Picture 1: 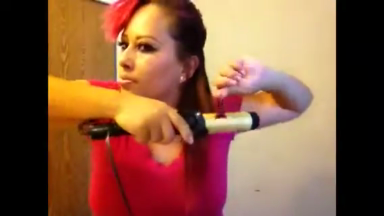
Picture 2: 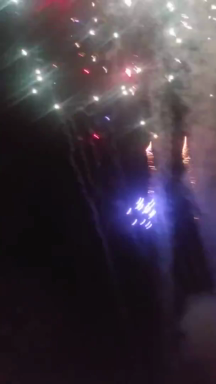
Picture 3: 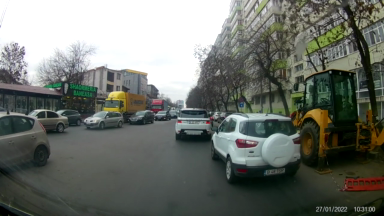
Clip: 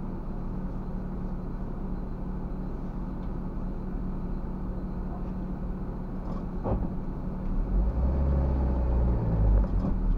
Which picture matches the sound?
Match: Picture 3